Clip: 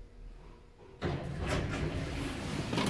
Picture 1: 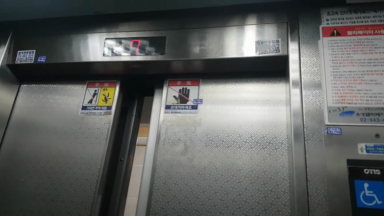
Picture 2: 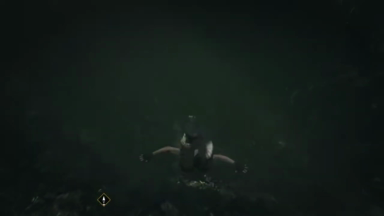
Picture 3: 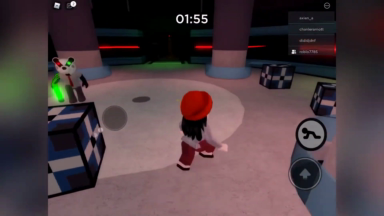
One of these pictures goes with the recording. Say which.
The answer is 1